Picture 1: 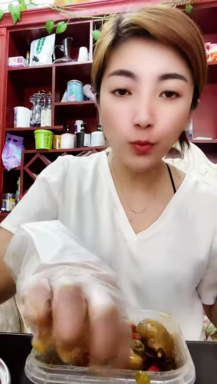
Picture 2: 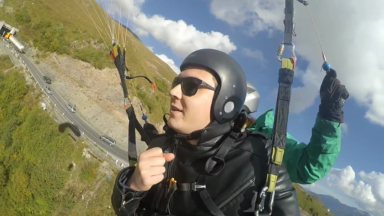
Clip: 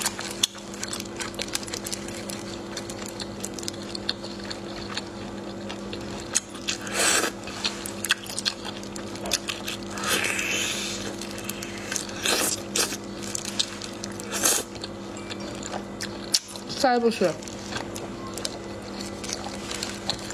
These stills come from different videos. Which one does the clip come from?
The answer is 1